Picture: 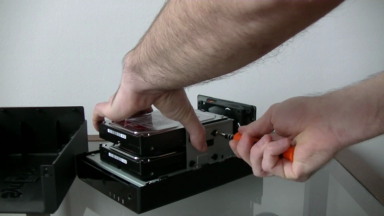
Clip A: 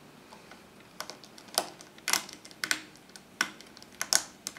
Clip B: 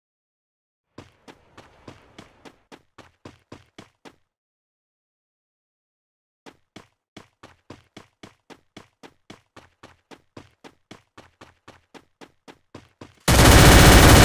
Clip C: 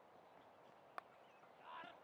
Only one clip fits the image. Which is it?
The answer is A